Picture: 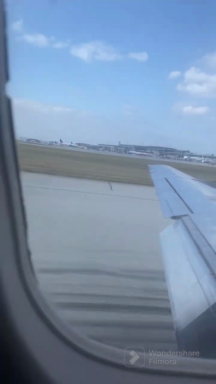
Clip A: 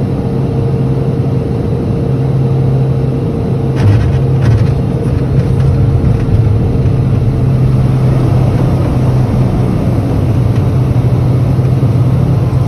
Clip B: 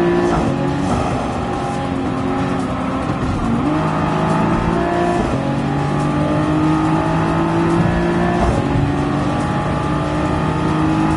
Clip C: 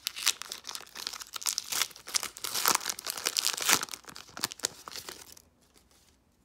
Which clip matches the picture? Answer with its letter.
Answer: A